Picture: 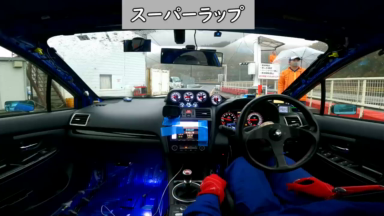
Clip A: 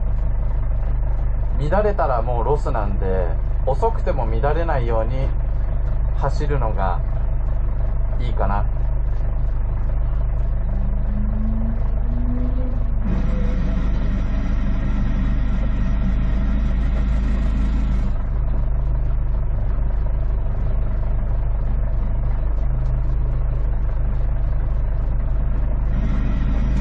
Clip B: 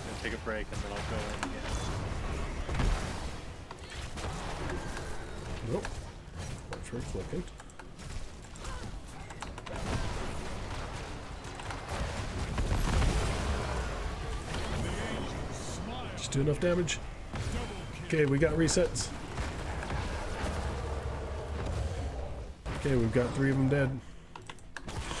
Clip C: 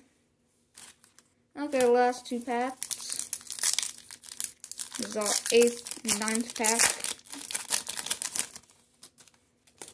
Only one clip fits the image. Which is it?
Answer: A